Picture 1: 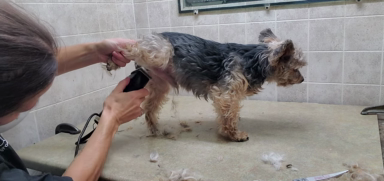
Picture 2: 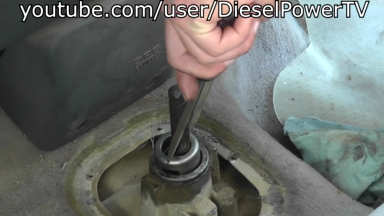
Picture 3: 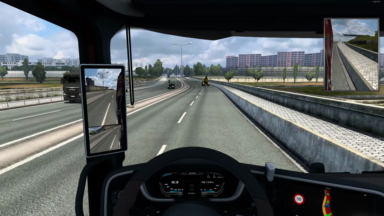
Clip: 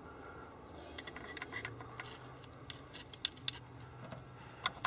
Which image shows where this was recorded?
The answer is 2